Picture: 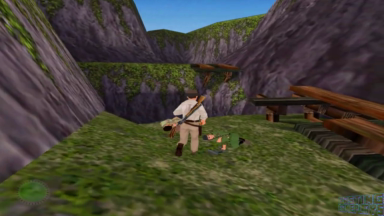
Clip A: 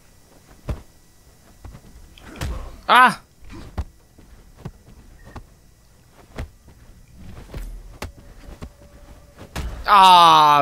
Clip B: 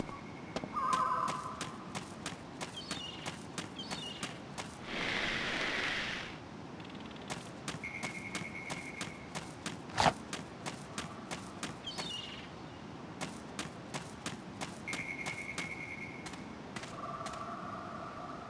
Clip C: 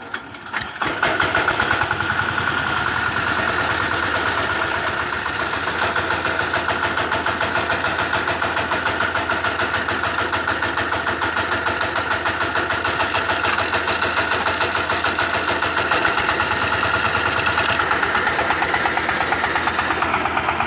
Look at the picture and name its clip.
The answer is B